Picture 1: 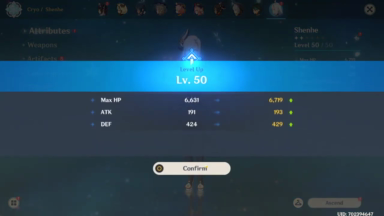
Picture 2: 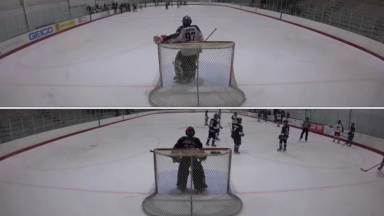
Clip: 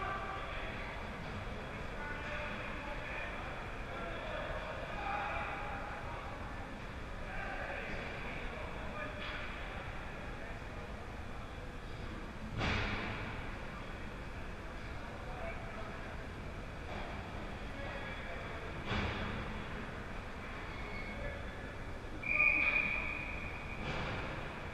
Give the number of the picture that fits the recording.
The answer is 2